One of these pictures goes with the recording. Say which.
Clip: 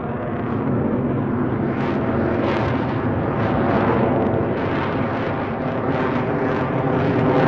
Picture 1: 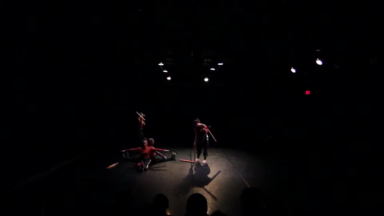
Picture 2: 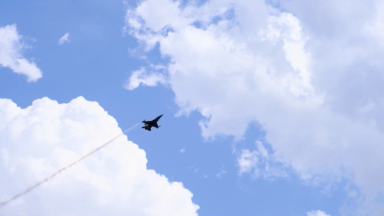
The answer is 2